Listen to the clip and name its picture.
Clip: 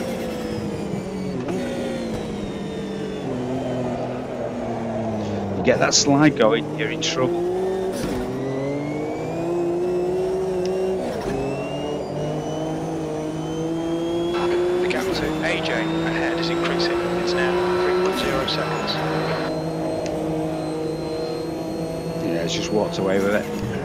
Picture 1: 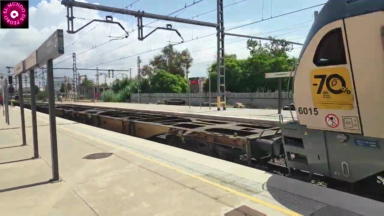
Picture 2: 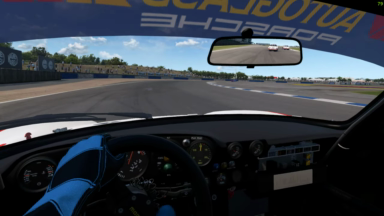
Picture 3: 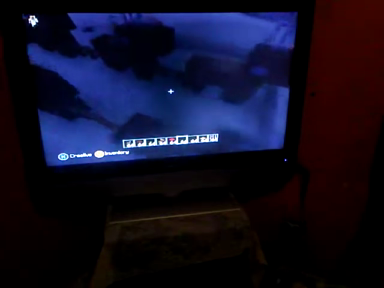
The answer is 2